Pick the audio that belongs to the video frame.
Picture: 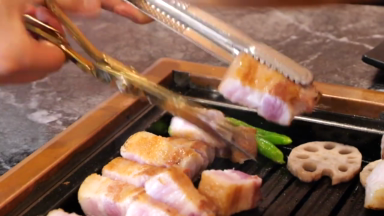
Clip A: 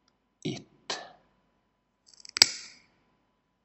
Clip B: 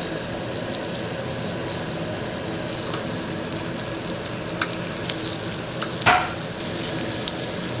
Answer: B